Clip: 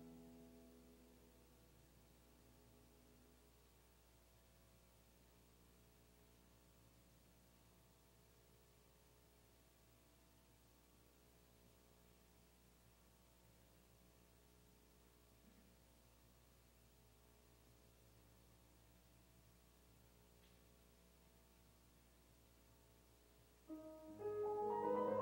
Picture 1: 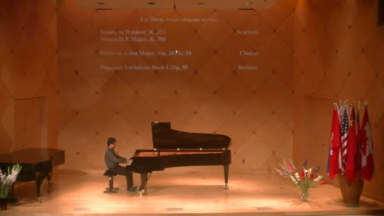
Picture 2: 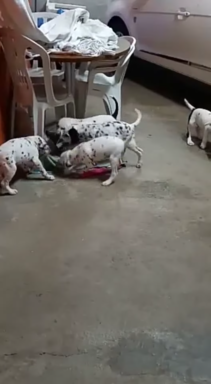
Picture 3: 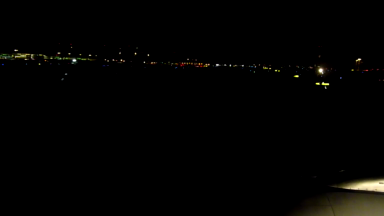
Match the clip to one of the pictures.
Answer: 1